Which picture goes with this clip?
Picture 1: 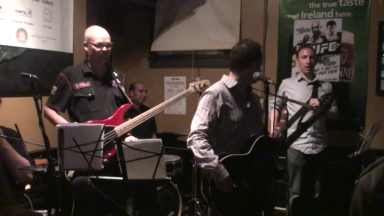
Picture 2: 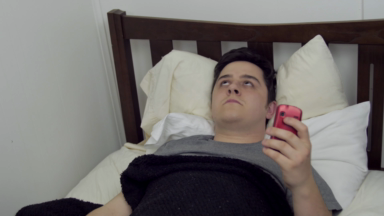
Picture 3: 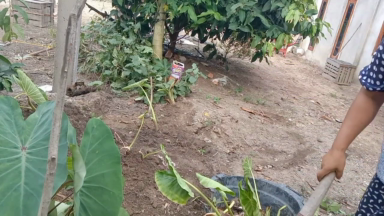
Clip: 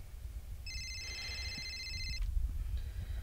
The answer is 2